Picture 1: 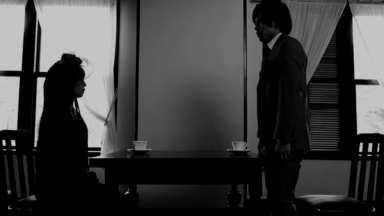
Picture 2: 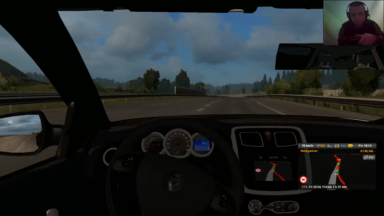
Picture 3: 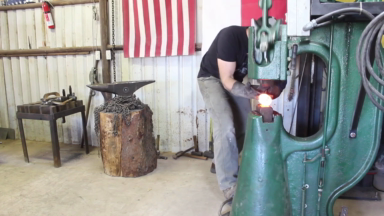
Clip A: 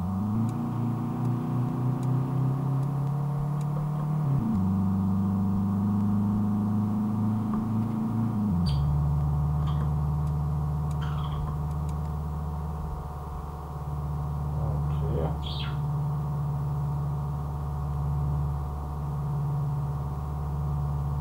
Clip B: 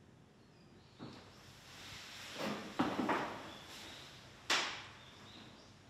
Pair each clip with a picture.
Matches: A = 2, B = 1